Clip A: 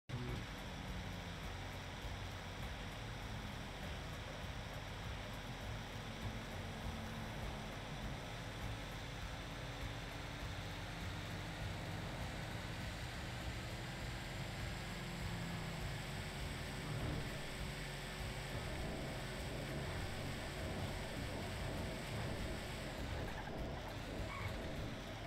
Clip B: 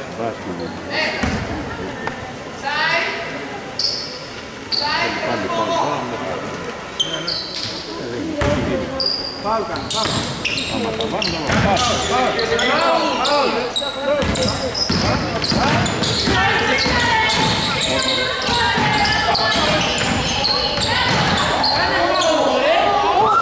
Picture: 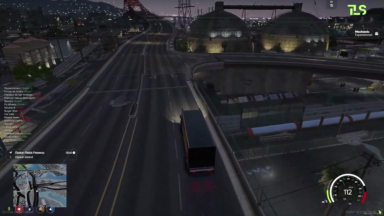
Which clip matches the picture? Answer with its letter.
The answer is A